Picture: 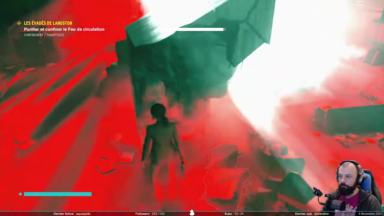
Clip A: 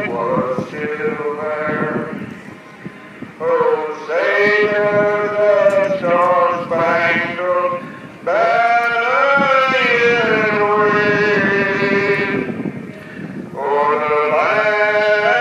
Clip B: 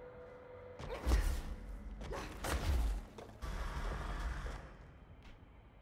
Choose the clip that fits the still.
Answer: B